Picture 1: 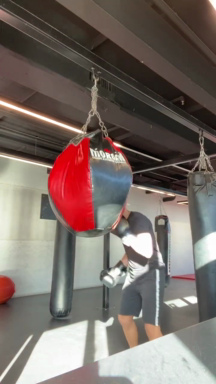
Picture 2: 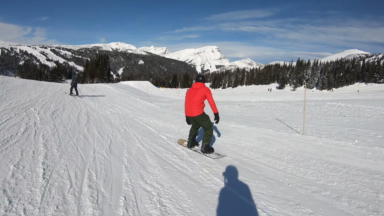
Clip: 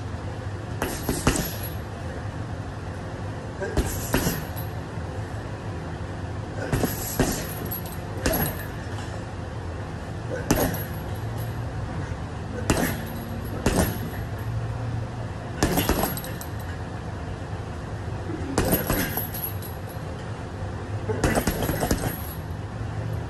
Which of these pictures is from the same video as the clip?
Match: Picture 1